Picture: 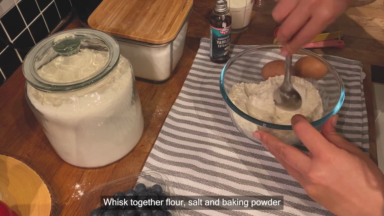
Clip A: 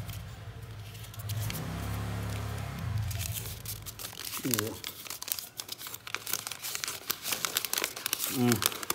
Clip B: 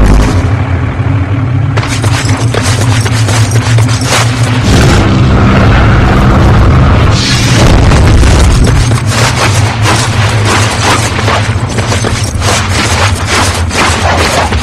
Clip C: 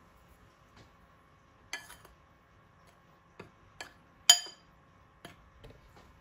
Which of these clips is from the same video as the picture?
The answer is C